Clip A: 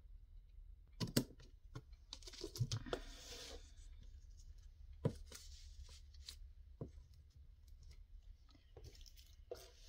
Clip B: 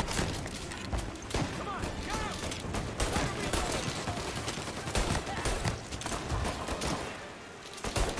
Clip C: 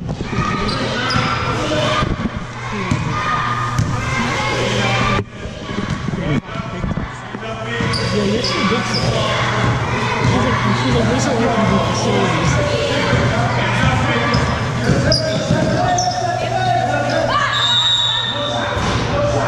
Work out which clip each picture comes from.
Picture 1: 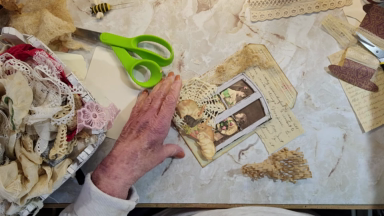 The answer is A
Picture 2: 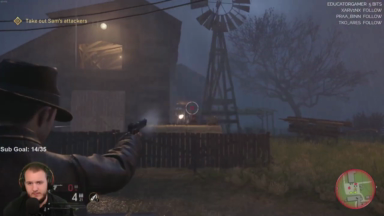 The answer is B